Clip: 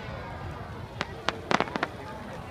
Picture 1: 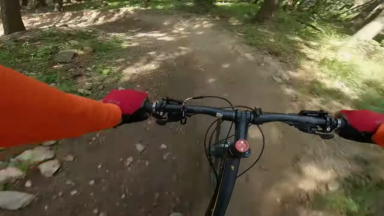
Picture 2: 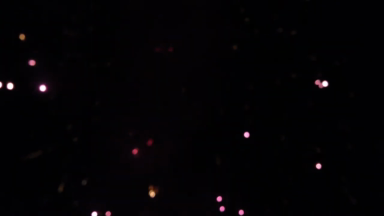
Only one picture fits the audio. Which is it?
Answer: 2